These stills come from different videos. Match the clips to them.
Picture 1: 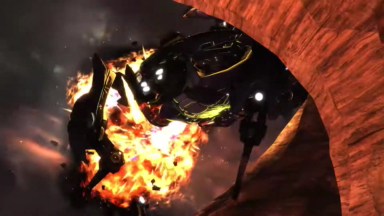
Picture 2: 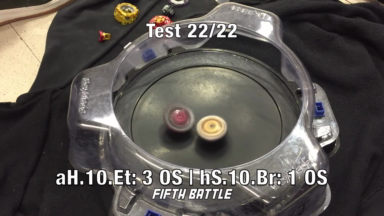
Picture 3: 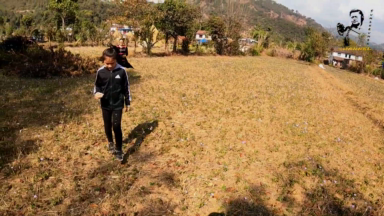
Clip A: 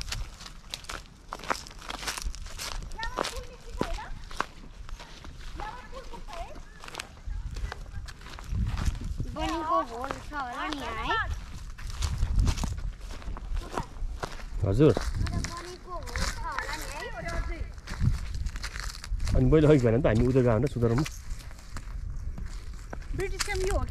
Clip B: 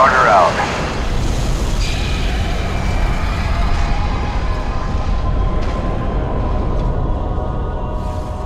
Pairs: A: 3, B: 1